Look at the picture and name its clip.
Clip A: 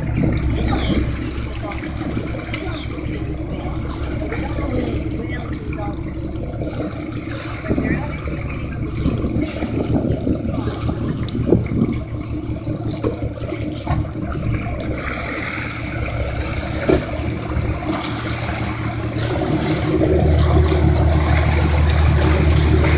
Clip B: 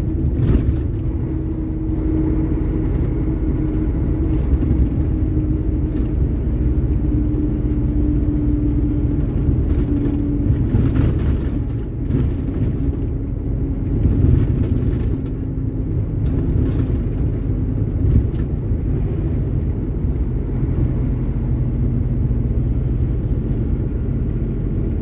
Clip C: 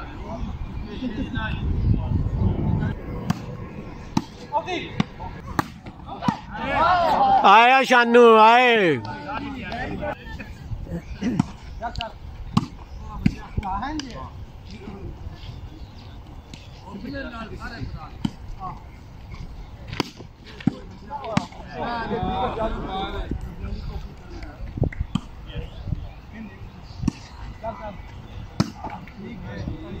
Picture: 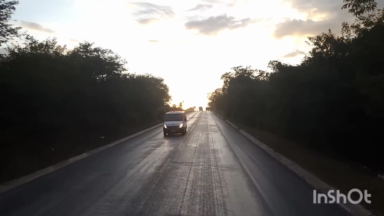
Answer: B